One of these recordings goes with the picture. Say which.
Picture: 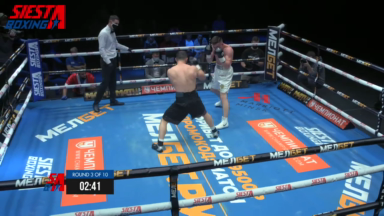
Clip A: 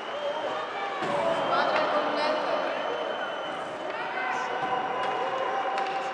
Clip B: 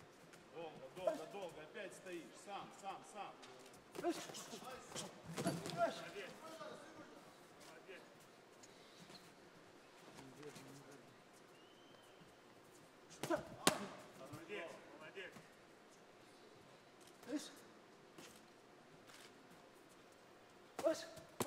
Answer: B